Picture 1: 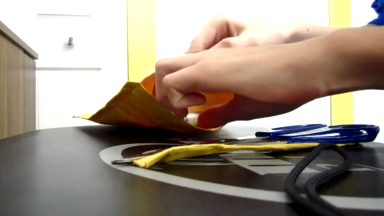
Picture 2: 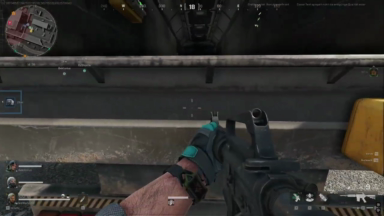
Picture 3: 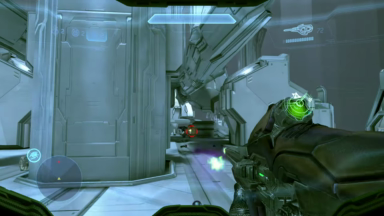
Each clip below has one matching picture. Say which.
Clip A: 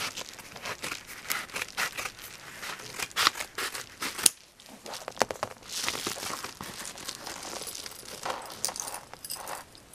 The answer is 1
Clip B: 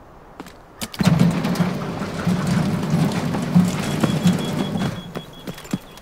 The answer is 2